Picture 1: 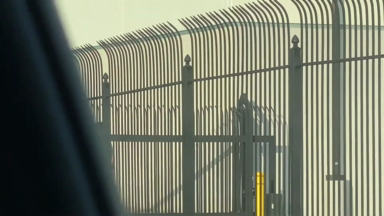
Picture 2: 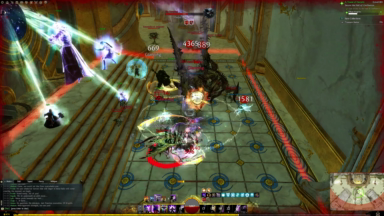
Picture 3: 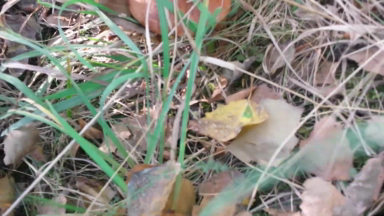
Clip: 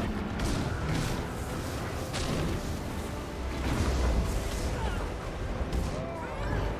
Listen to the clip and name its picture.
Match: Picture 2